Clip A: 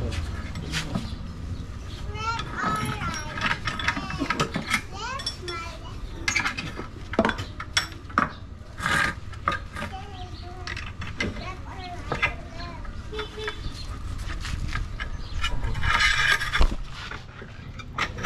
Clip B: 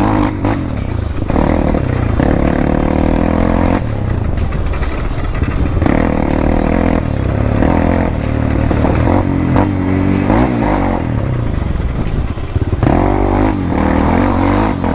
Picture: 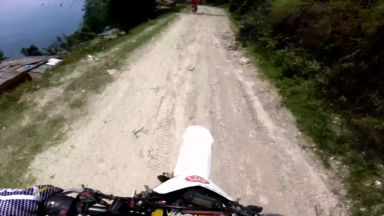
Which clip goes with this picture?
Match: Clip B